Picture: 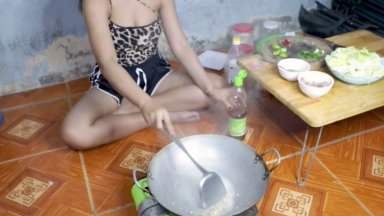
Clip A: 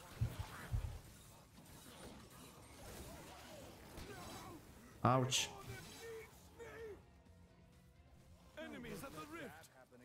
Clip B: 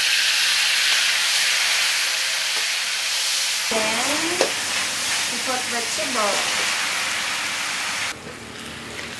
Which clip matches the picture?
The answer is B